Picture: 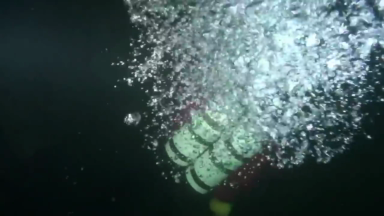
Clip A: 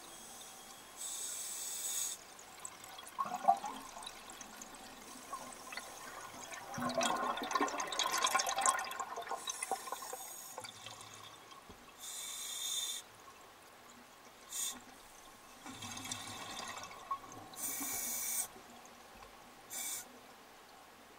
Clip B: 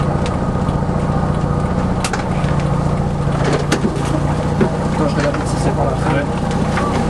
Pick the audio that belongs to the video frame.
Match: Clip A